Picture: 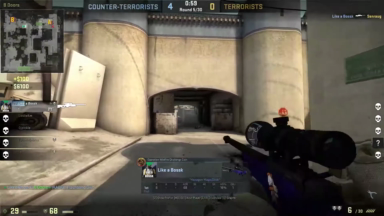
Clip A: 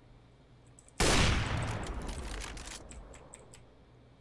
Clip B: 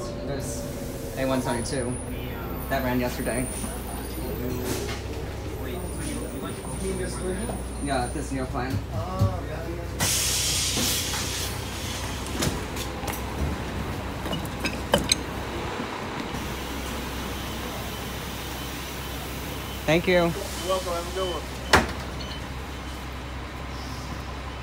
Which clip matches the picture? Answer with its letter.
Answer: A